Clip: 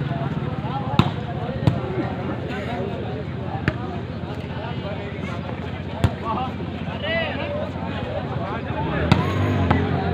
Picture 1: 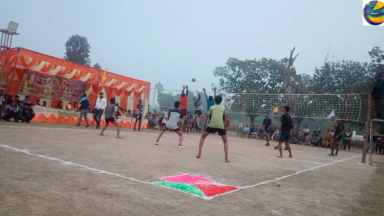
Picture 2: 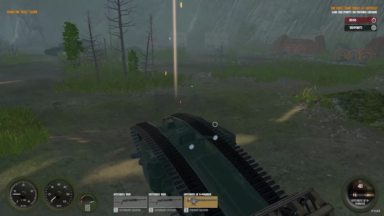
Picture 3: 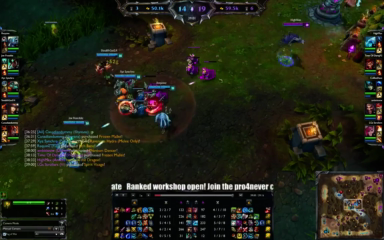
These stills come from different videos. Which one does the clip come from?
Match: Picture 1